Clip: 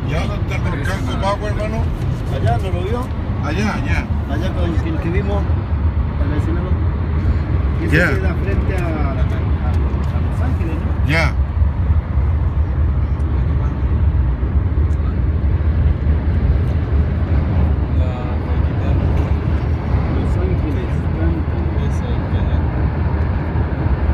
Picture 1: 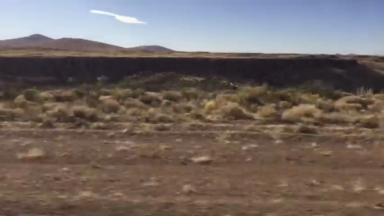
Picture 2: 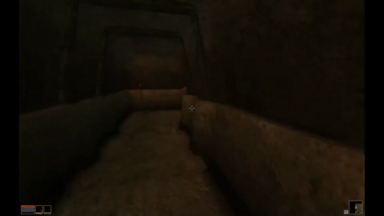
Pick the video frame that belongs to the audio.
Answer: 1